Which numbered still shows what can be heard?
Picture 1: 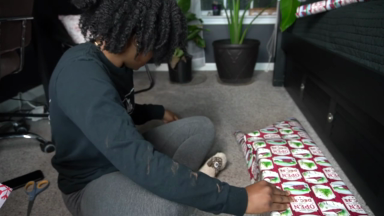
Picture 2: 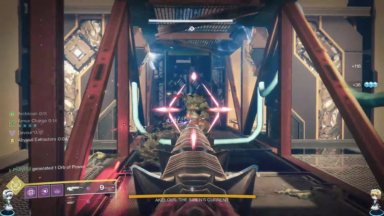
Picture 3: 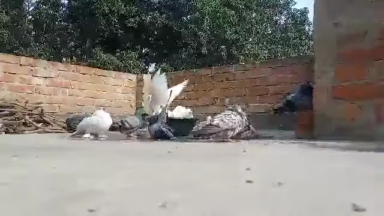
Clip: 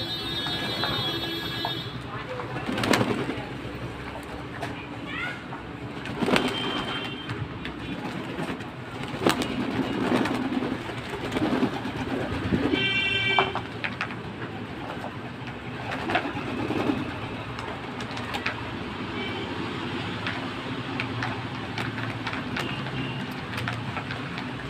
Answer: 3